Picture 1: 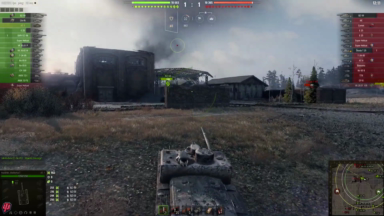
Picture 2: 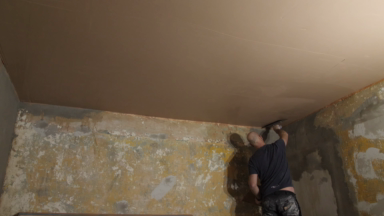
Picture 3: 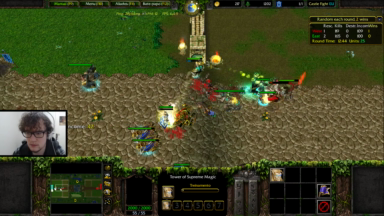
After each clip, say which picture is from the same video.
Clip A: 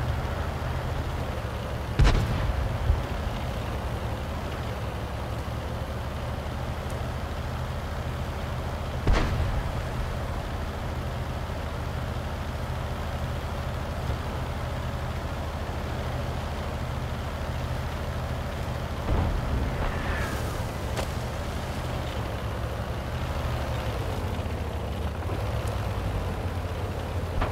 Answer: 1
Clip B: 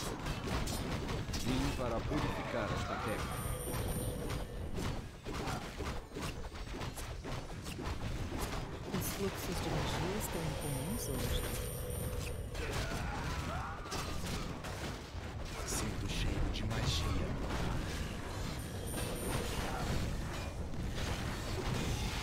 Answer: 3